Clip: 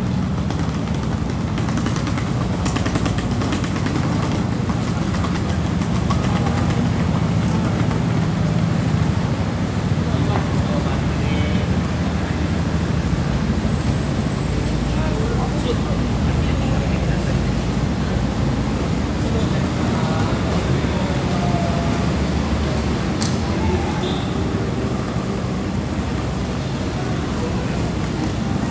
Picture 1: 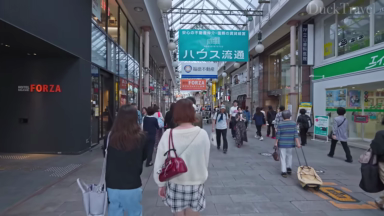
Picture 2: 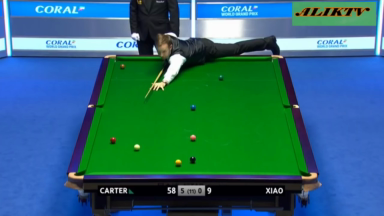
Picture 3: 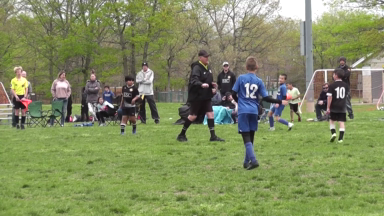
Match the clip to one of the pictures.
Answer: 1